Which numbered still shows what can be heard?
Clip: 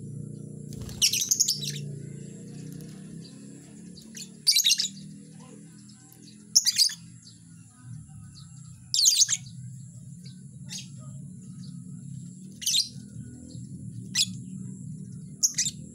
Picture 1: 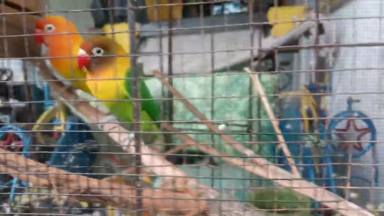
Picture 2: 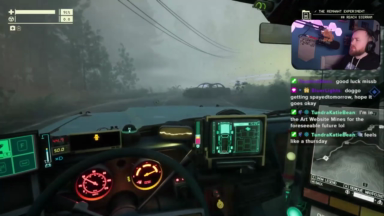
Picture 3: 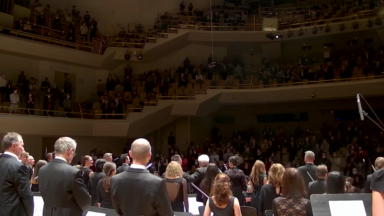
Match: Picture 1